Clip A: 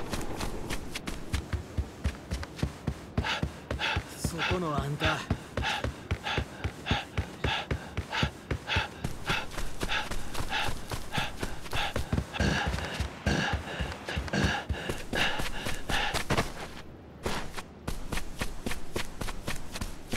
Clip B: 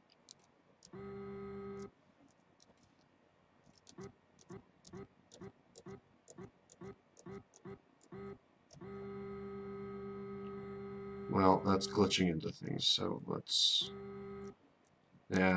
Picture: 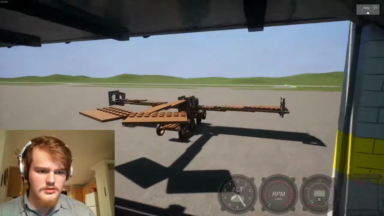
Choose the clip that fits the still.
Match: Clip B